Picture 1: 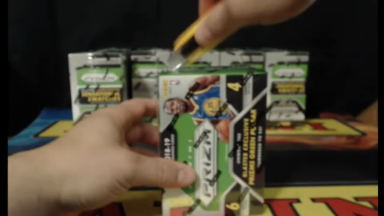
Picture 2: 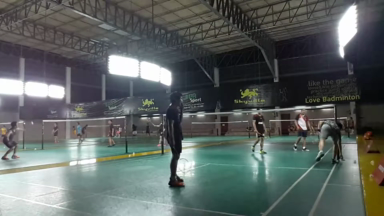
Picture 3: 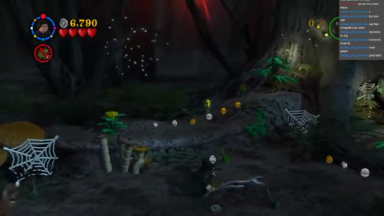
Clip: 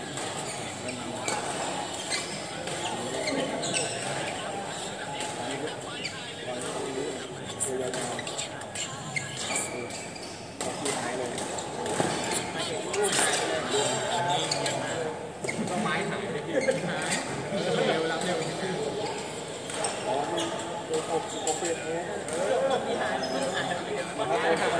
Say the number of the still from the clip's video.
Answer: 2